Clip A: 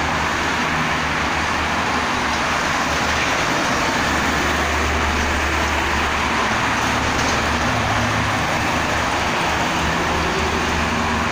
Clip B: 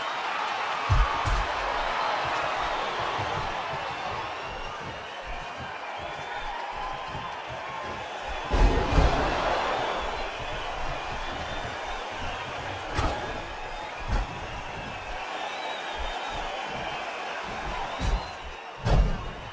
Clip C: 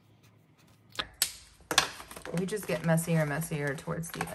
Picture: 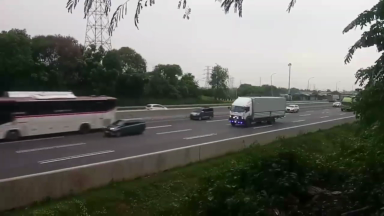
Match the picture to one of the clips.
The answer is A